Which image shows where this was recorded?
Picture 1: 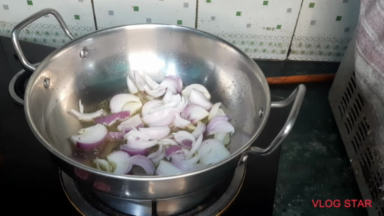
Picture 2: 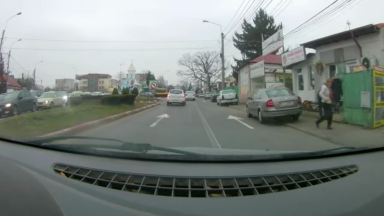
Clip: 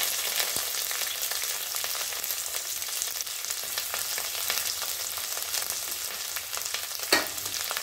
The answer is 1